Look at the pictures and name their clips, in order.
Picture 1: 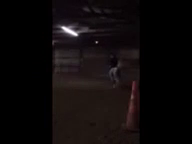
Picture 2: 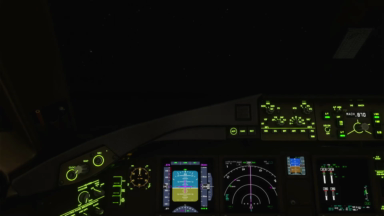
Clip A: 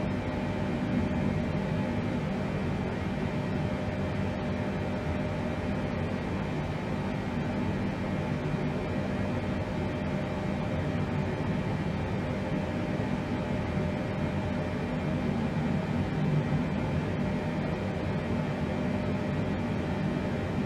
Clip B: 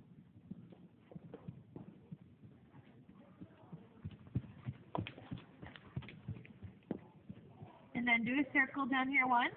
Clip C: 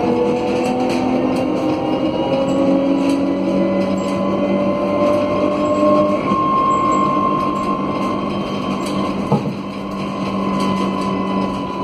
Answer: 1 B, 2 A